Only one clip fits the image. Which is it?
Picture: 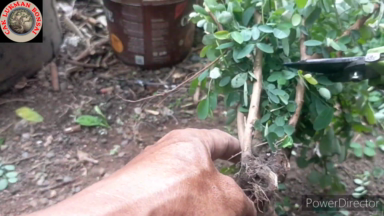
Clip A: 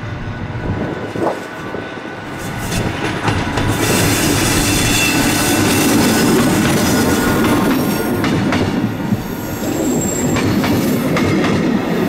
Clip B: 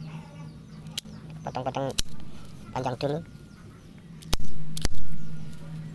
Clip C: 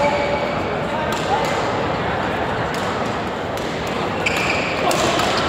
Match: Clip B